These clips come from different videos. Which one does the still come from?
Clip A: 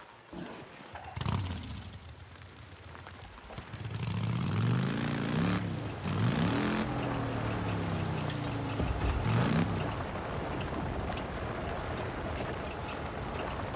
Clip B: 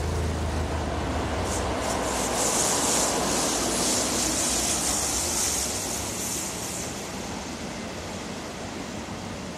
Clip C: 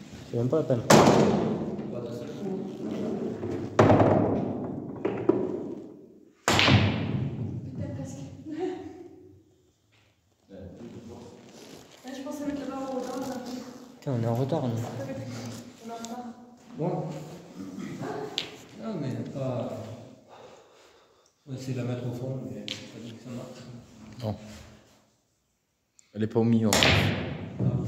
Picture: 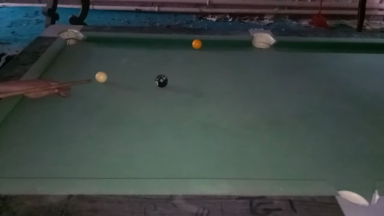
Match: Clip C